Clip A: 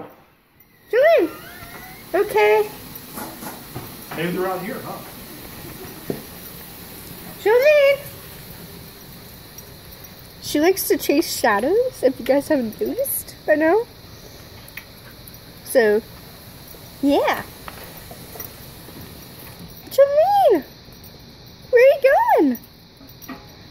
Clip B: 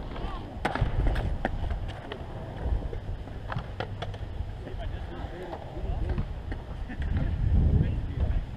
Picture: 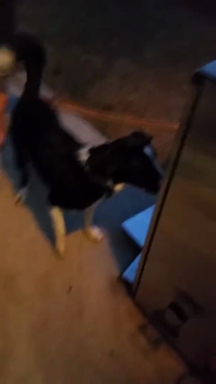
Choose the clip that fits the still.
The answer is A